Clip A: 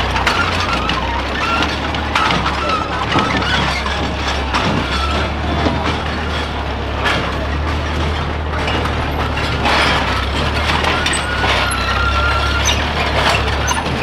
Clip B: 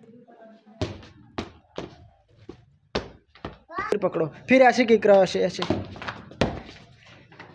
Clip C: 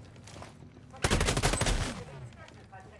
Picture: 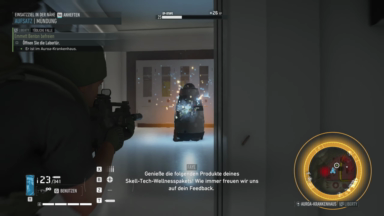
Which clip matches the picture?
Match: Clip C